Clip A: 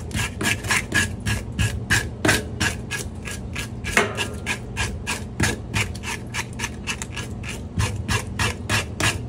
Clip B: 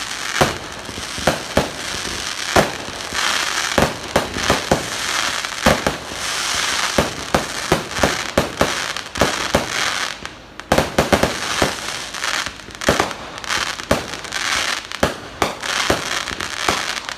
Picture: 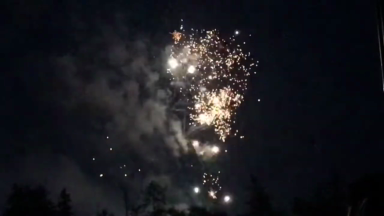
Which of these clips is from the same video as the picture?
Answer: B